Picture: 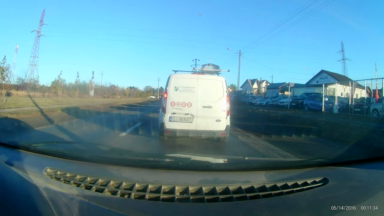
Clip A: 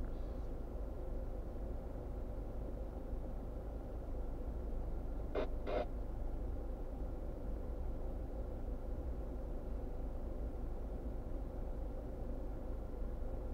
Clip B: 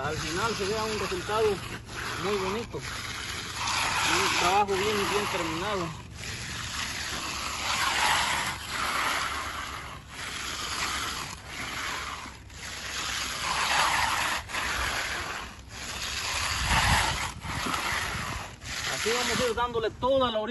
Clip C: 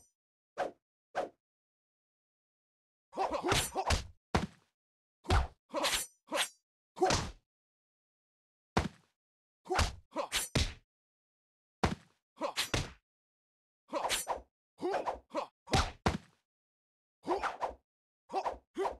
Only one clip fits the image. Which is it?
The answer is A